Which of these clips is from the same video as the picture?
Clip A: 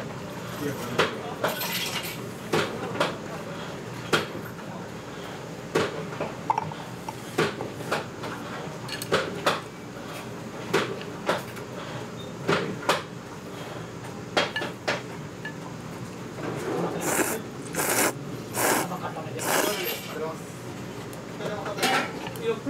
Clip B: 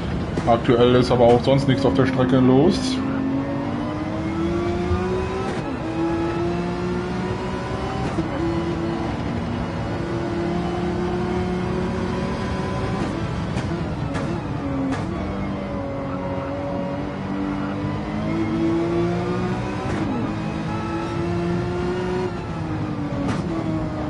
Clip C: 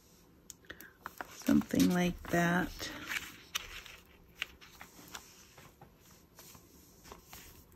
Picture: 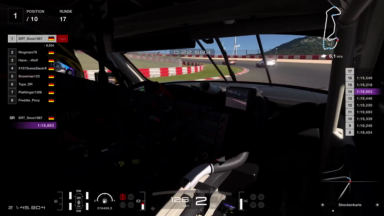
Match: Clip B